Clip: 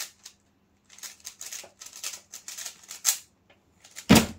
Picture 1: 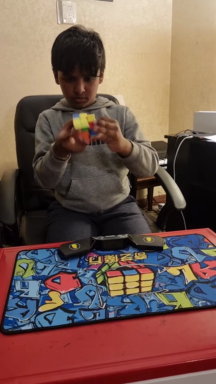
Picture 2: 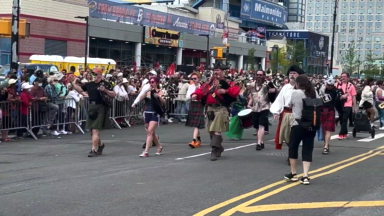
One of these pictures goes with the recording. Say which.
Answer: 1